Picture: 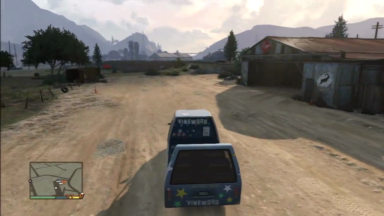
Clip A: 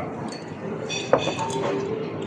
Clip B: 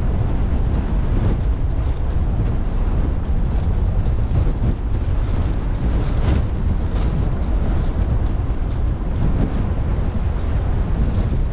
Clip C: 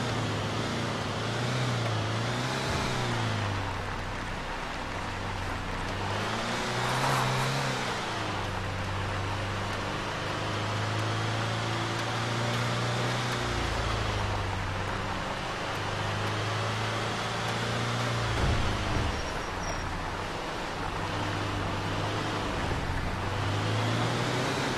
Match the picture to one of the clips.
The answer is C